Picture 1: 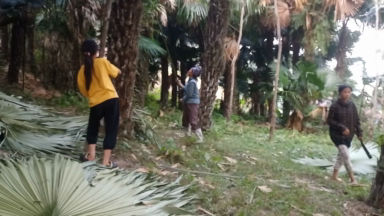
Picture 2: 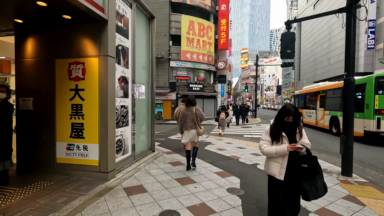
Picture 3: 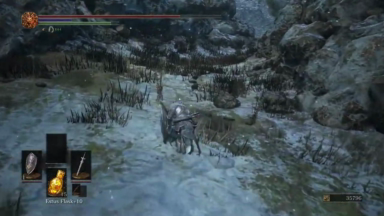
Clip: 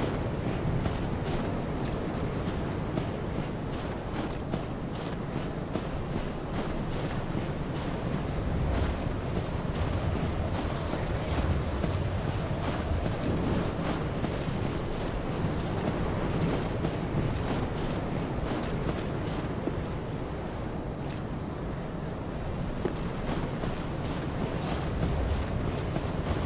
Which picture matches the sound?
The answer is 3